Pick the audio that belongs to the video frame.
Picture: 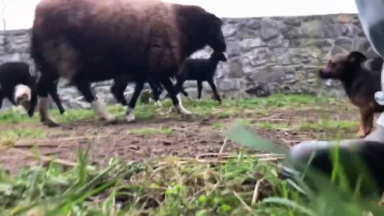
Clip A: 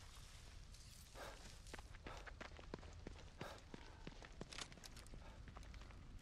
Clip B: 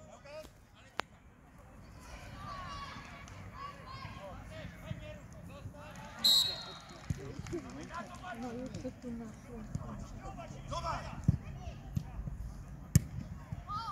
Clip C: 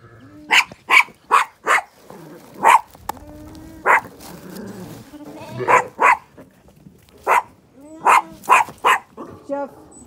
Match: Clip C